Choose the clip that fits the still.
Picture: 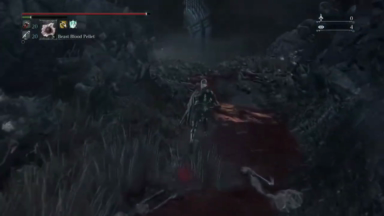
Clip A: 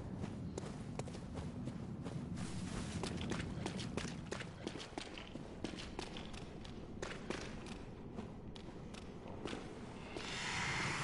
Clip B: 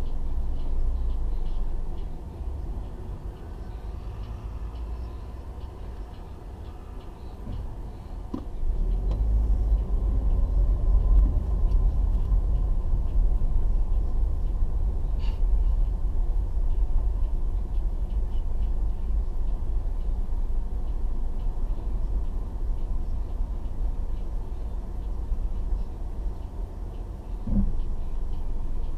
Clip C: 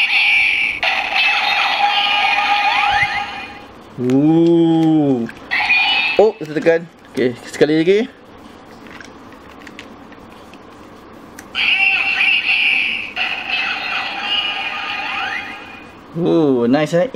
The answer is A